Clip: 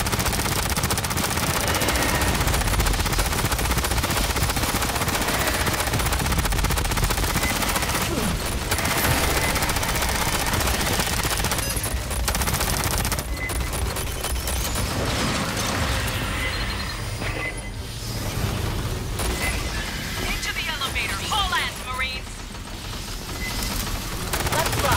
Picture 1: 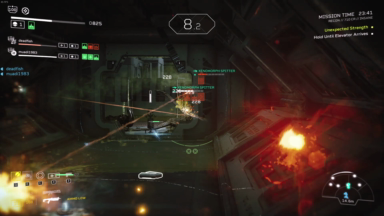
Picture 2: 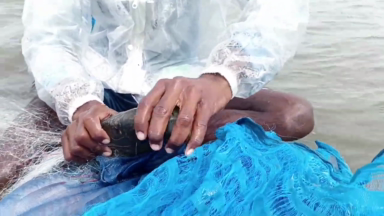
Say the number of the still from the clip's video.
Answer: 1